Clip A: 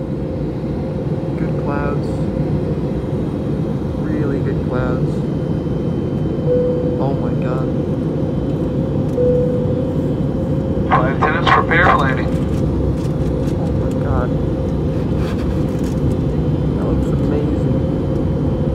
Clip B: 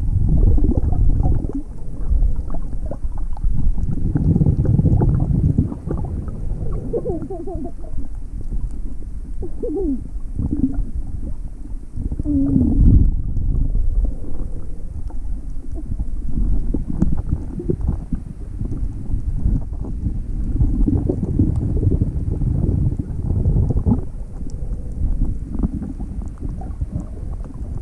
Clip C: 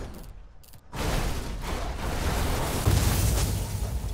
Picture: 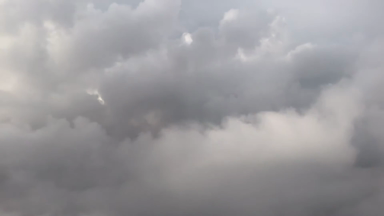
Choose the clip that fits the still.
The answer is A